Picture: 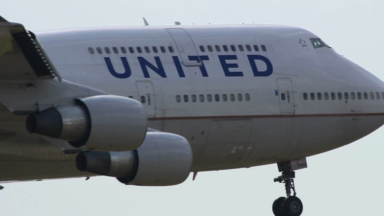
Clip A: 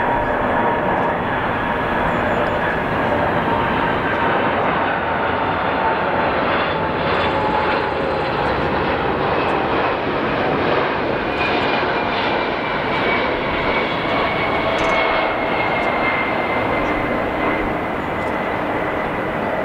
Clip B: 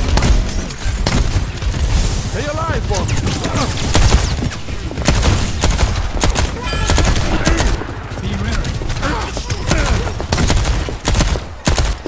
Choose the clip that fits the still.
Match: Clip A